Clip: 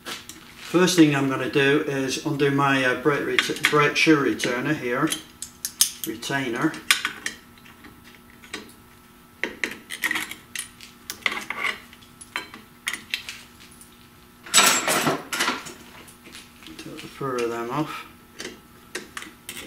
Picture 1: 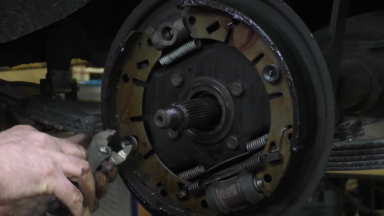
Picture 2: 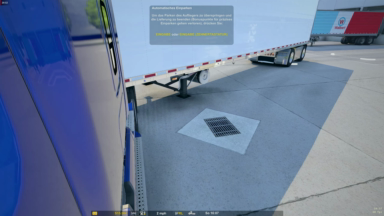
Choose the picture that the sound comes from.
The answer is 1